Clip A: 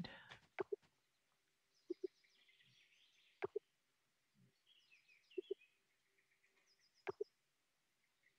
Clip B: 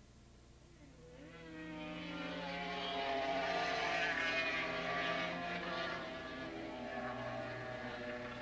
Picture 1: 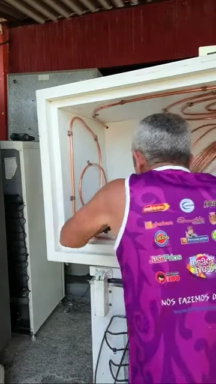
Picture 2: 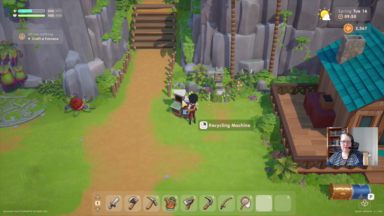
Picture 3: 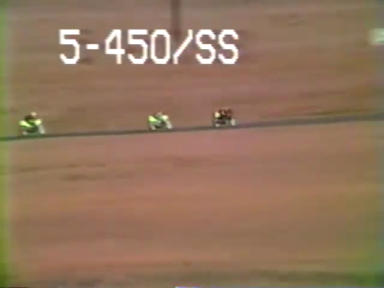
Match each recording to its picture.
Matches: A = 2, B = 3